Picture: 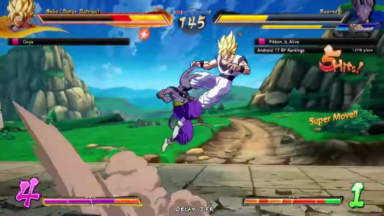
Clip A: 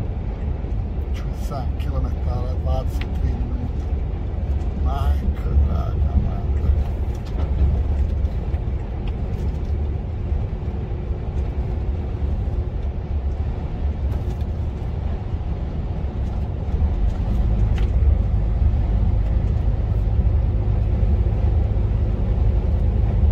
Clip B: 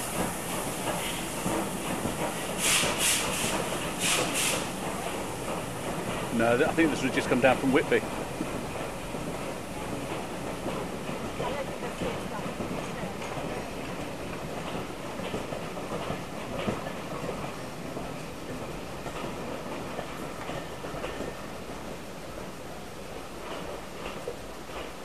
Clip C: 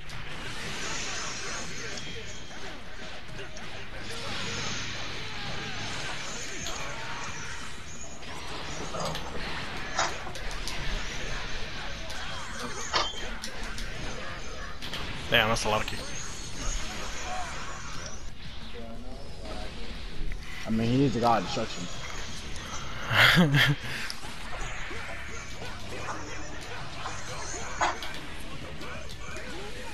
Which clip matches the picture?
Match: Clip C